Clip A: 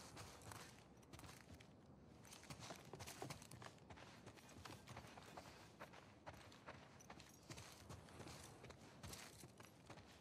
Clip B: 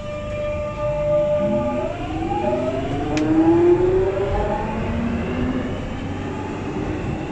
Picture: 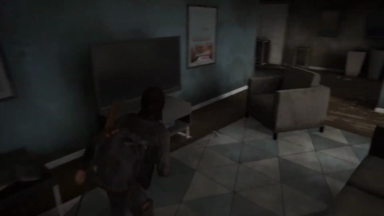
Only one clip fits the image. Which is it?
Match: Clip A